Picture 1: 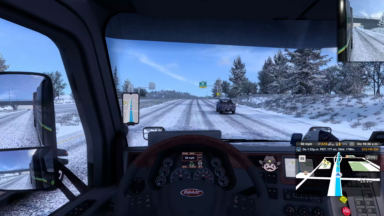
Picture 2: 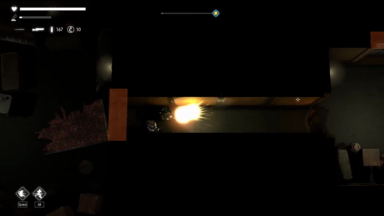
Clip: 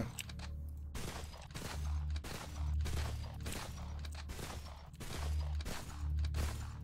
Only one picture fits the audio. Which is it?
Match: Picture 2